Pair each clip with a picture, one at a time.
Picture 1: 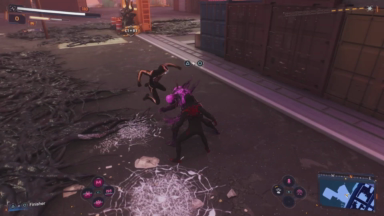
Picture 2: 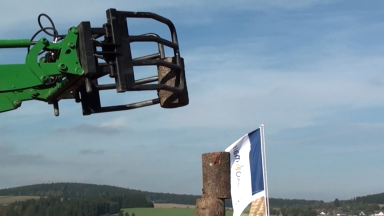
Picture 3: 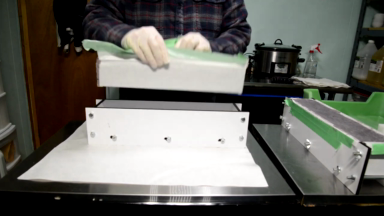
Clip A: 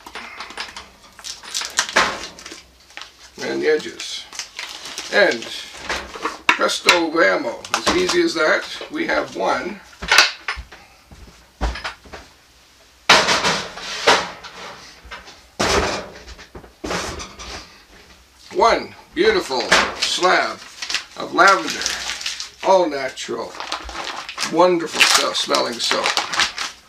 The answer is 3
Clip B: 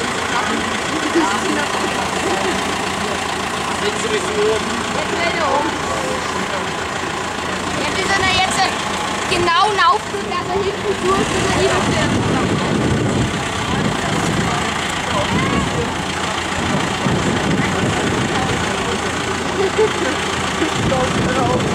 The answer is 2